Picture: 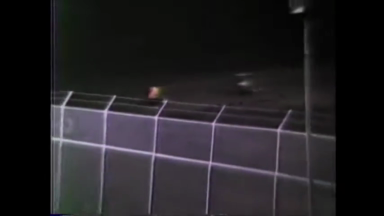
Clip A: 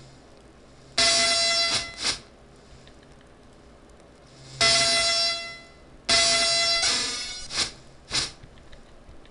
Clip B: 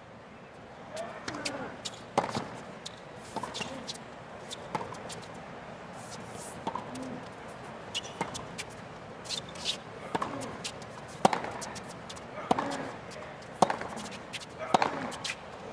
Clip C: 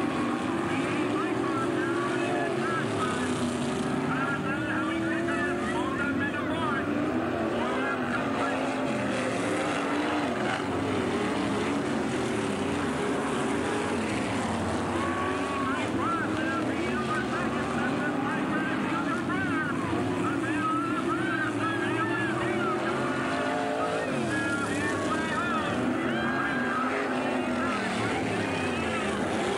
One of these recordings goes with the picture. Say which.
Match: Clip C